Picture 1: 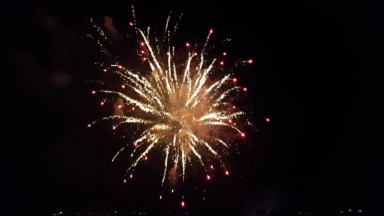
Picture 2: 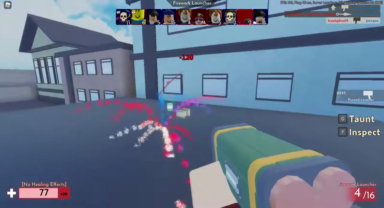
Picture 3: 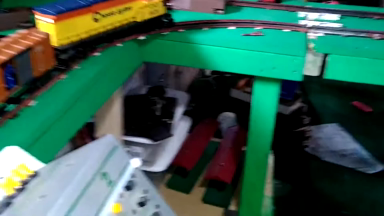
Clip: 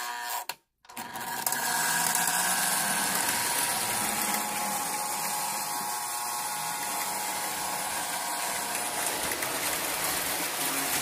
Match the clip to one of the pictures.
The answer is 3